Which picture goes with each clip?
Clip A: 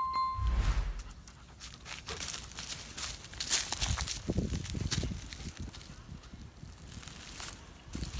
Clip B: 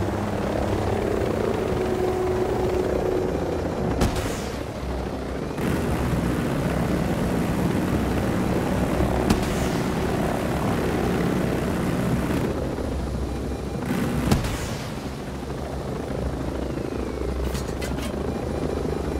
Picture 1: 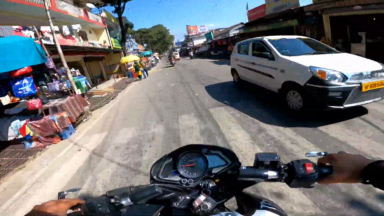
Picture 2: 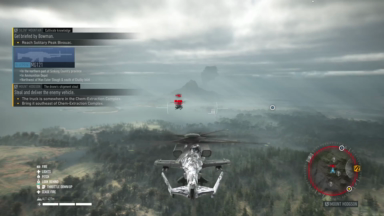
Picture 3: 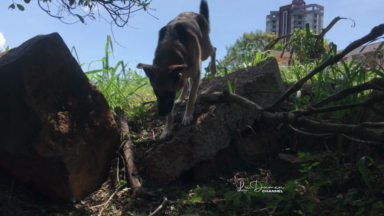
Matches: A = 3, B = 2